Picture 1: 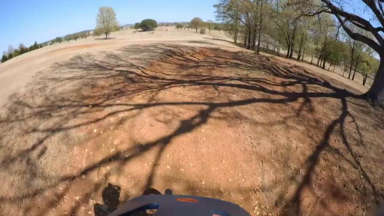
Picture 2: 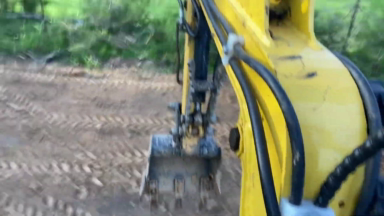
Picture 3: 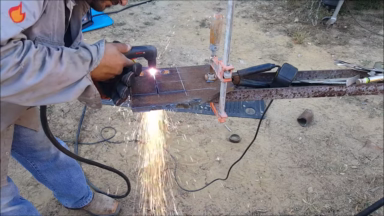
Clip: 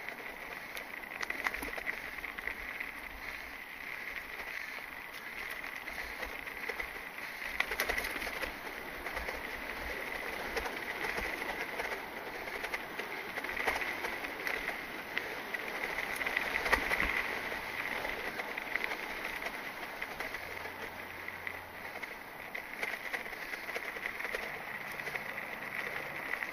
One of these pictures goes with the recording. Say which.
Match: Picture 1